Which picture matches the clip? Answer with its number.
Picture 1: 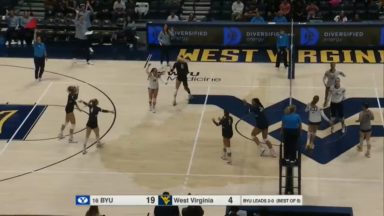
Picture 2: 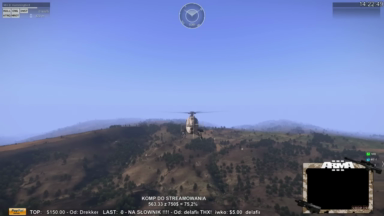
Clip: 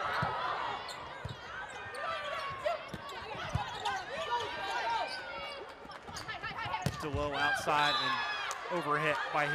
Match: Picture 1